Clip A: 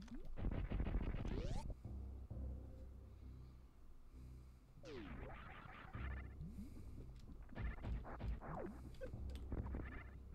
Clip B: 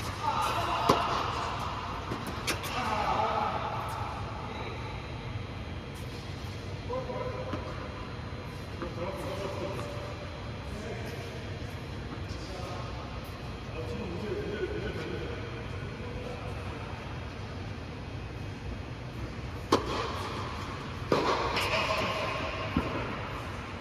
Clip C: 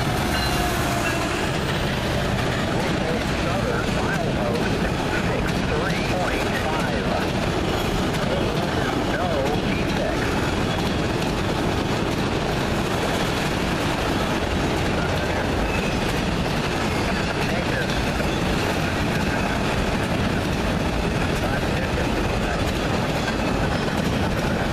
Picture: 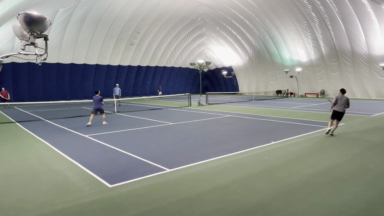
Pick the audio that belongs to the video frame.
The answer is B